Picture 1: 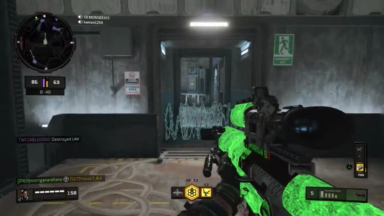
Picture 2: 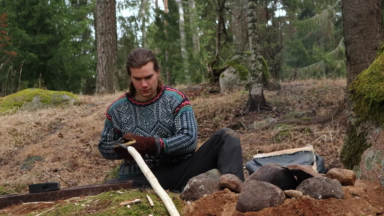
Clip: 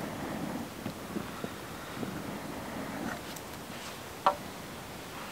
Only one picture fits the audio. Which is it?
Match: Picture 2